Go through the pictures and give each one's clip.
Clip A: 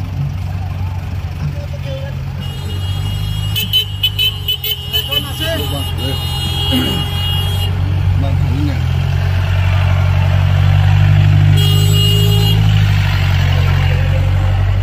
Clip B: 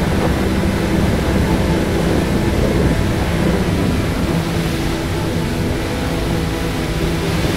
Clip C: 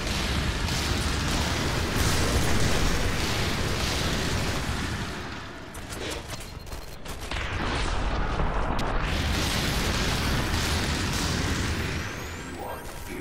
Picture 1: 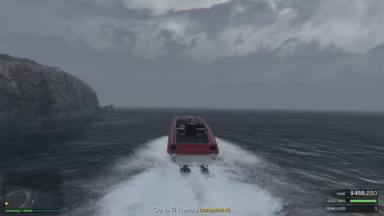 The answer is B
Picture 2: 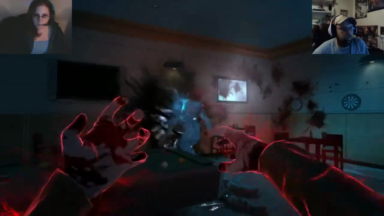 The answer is C